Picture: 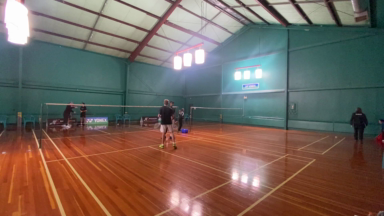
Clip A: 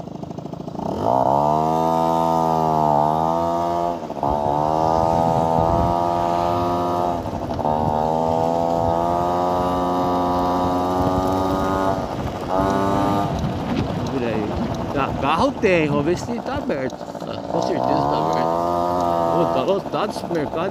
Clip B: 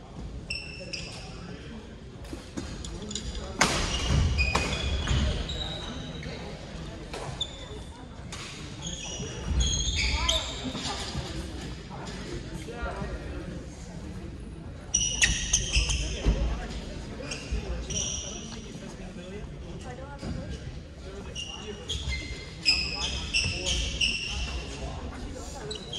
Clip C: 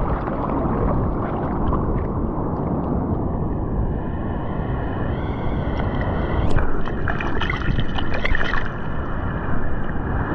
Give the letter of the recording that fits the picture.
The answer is B